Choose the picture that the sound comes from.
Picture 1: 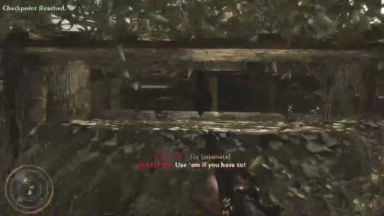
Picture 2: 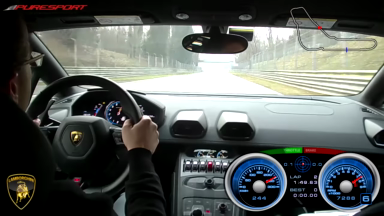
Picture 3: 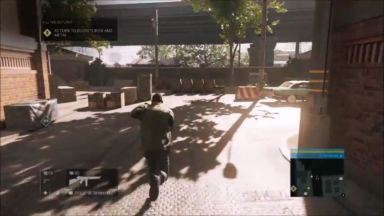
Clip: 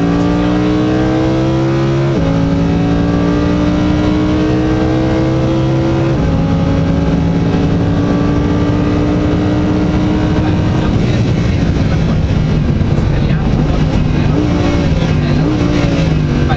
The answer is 2